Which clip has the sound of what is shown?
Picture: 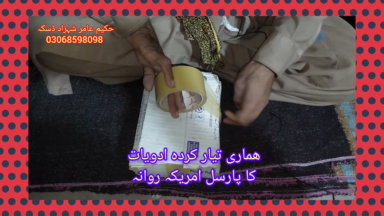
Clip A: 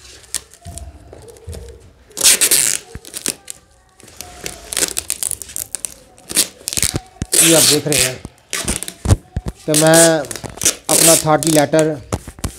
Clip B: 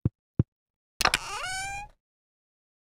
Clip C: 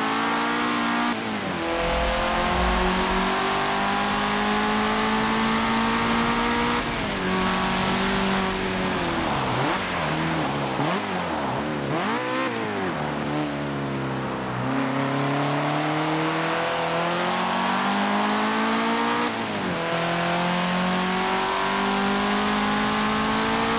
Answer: A